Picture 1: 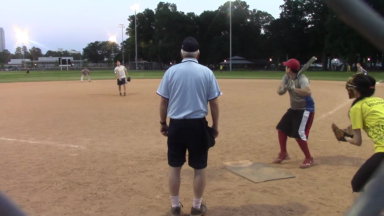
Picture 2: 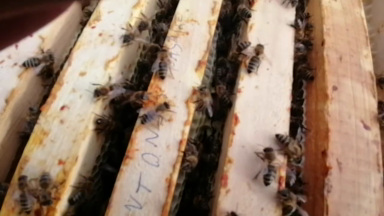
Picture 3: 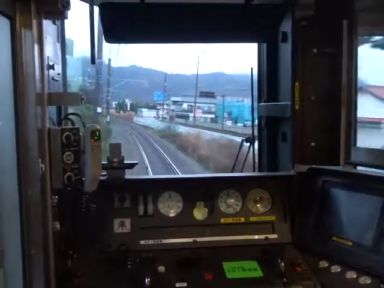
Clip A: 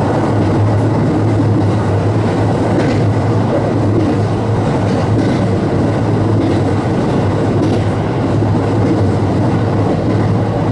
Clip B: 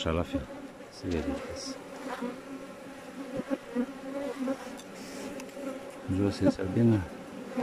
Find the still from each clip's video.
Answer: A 3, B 2